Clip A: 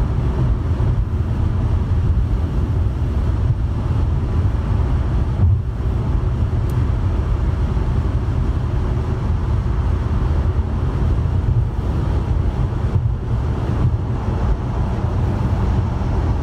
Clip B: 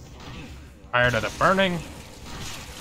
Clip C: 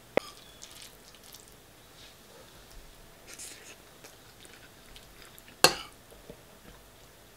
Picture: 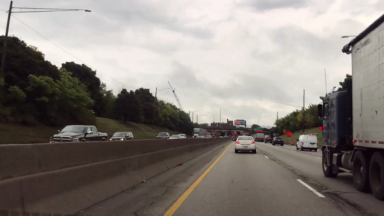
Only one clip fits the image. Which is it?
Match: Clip A